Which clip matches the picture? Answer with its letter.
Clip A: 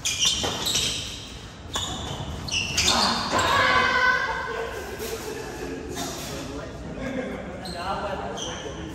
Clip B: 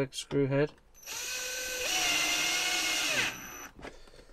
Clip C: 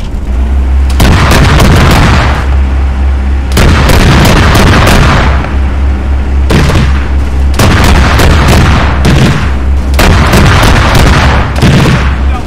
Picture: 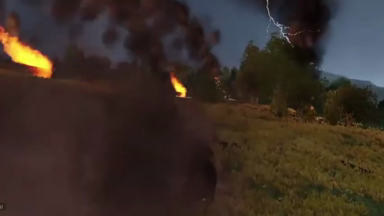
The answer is C